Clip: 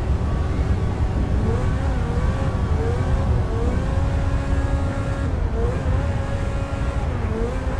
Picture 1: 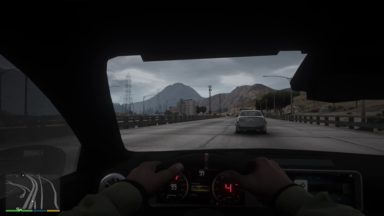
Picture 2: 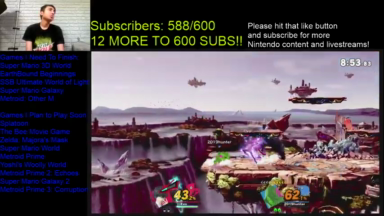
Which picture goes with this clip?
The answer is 1